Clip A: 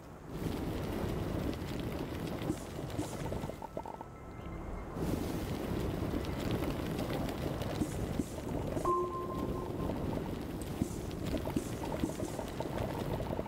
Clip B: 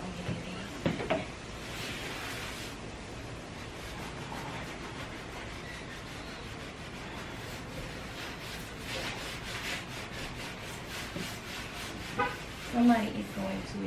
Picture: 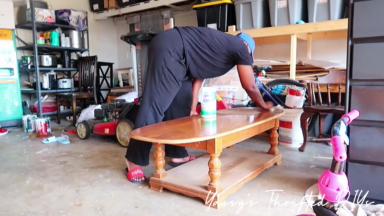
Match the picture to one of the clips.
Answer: B